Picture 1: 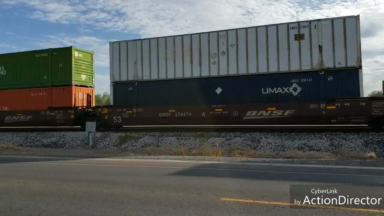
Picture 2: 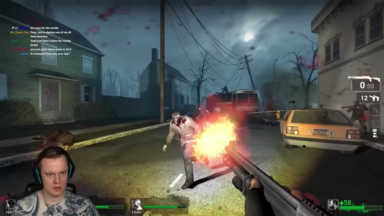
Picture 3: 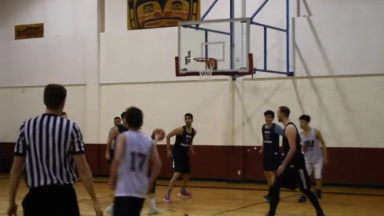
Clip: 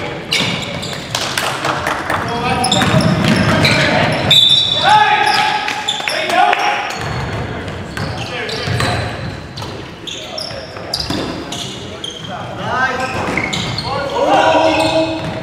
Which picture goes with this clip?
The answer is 3